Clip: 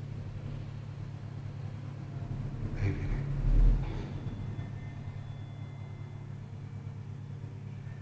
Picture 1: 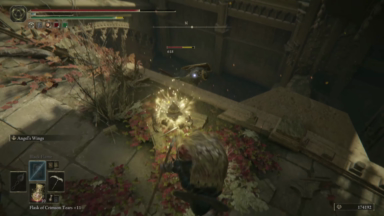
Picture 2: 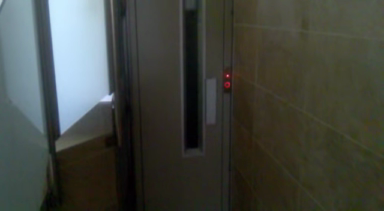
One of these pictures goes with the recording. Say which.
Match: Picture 2